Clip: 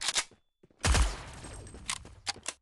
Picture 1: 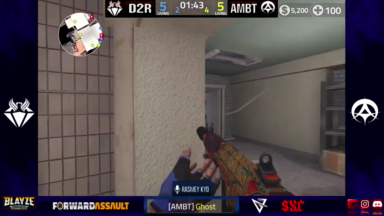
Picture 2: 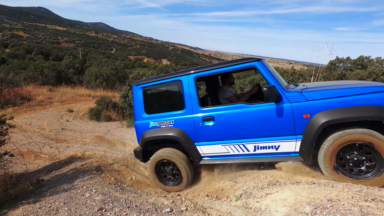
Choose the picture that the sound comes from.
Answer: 1